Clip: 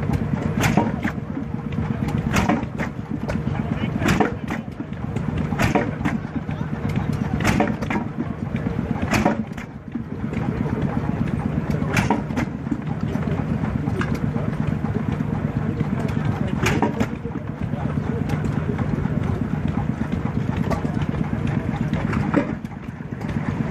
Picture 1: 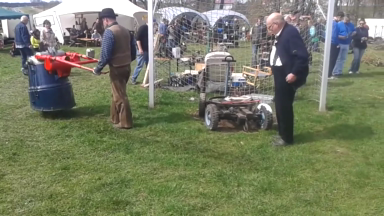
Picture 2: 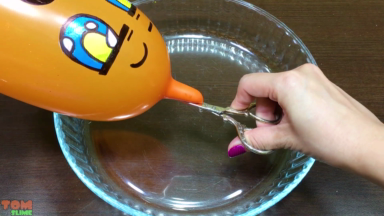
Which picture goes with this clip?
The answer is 1